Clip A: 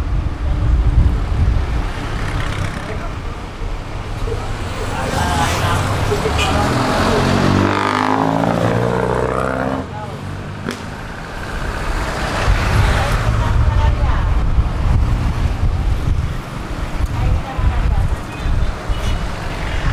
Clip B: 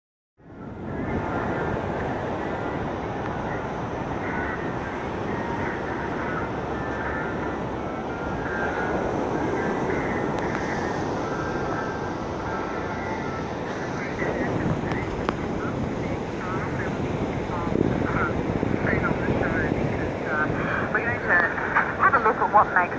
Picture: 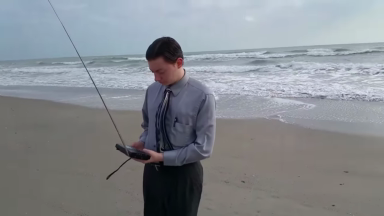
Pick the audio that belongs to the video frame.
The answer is B